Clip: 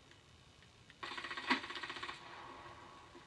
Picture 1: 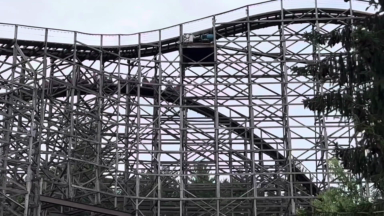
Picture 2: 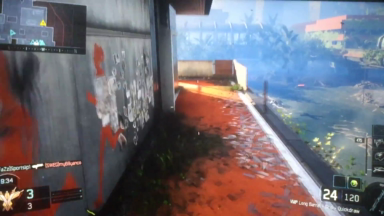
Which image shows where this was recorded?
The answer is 2